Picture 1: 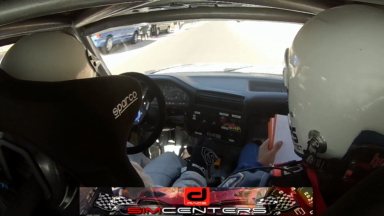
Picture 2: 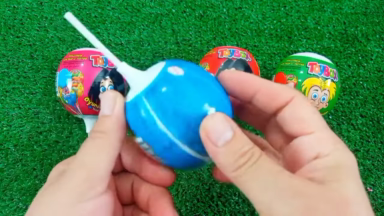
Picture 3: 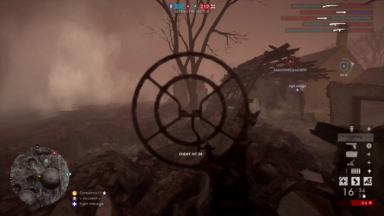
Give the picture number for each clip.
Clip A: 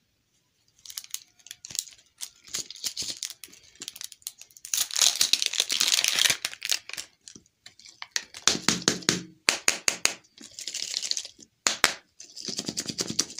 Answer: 2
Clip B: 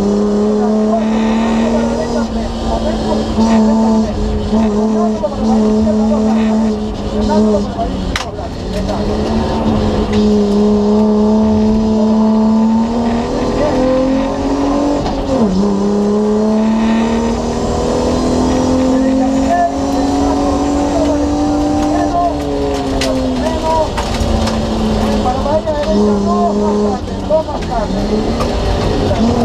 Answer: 1